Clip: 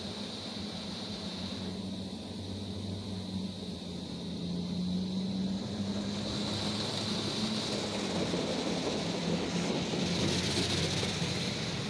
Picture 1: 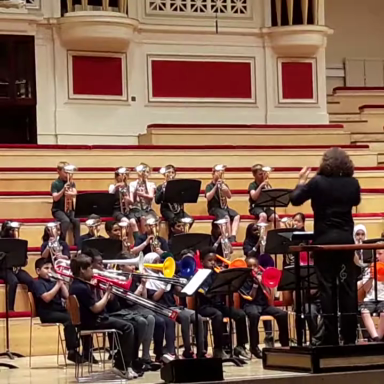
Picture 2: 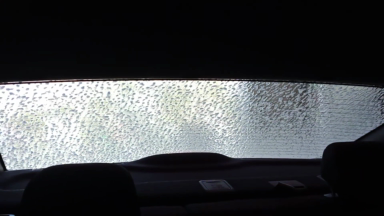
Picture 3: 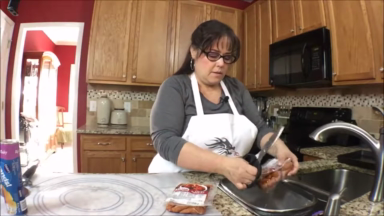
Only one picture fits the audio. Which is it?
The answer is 2